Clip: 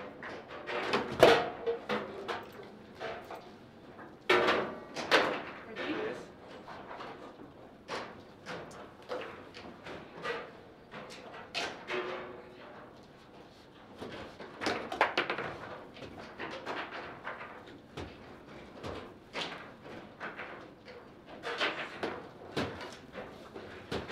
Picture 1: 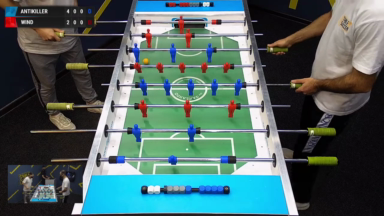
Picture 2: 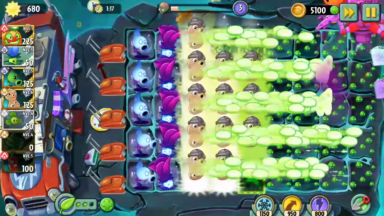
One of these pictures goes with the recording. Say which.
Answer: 1